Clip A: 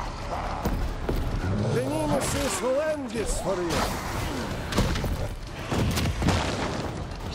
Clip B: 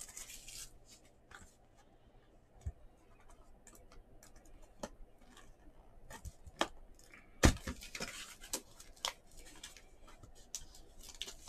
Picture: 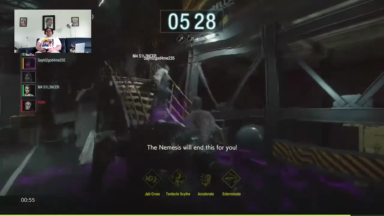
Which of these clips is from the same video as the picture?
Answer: A